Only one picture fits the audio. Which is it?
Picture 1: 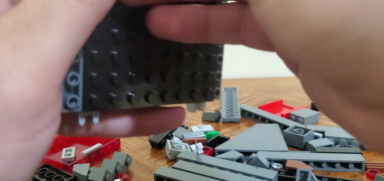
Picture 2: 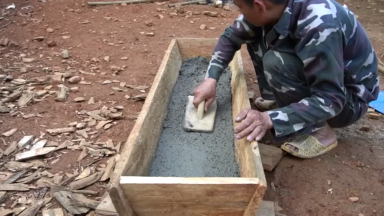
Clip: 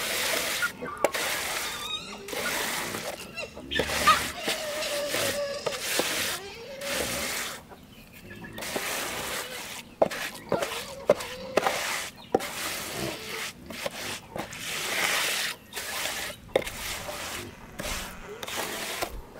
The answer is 2